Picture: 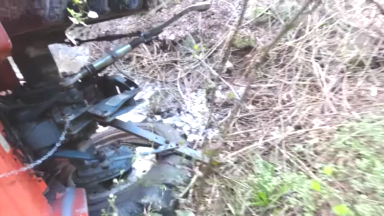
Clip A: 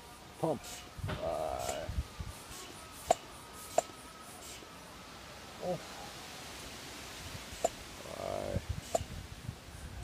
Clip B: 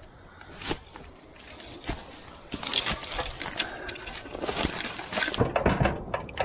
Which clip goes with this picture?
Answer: B